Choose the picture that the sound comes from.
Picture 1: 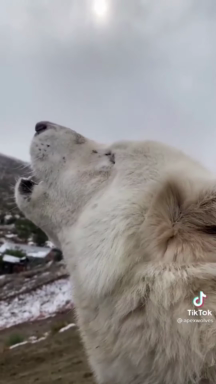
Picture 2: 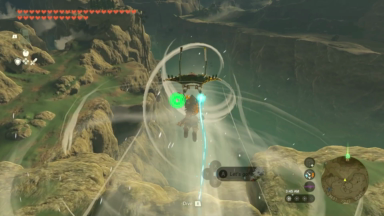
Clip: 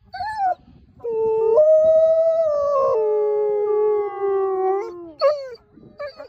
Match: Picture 1